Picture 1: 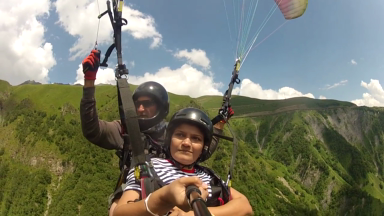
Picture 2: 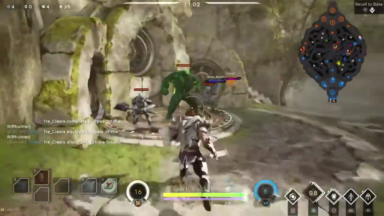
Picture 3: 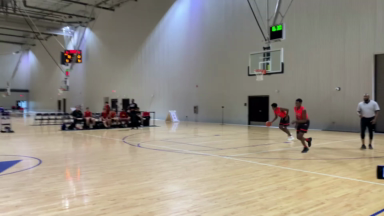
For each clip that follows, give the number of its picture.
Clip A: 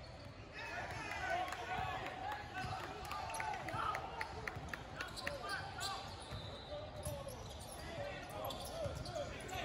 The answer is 3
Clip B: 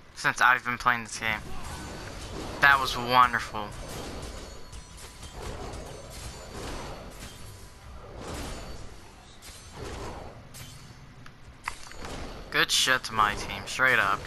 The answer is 2